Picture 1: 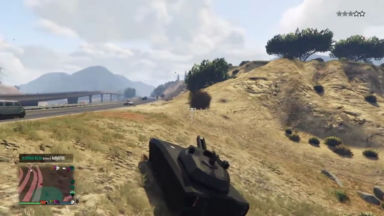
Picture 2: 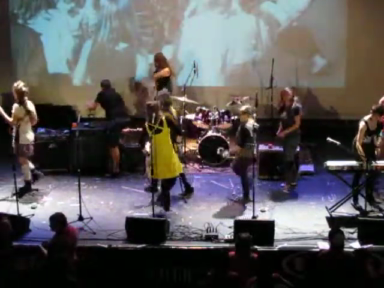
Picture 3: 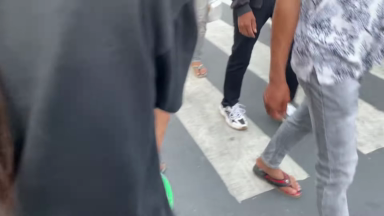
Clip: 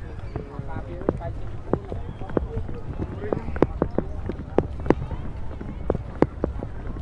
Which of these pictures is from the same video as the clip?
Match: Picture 3